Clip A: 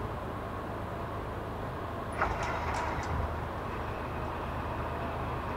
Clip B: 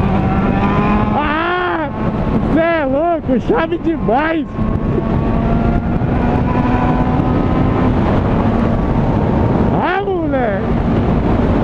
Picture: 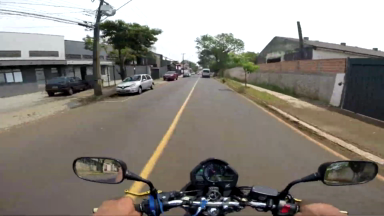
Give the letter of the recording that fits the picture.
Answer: B